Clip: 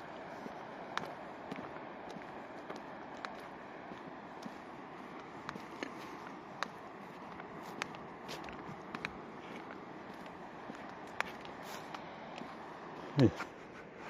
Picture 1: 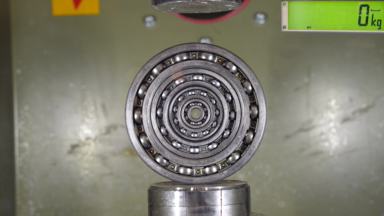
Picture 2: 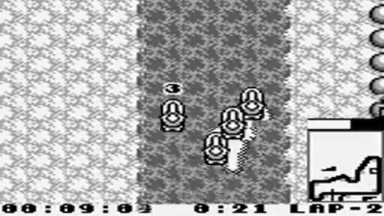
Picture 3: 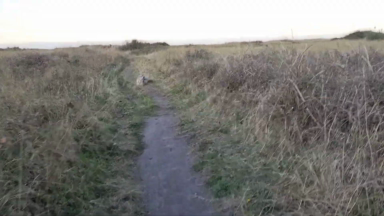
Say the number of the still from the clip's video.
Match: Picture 3